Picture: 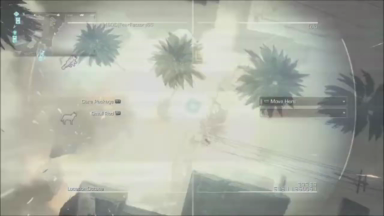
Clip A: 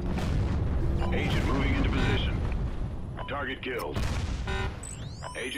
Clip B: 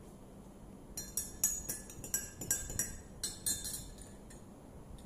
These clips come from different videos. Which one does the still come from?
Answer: A